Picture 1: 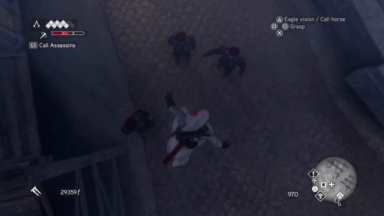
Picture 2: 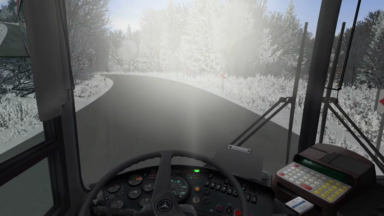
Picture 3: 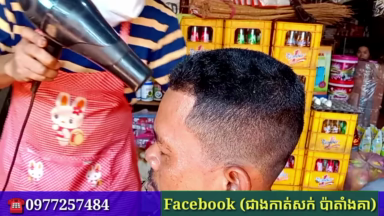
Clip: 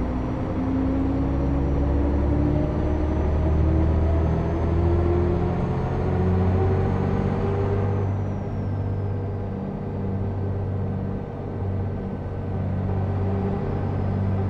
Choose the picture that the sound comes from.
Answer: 2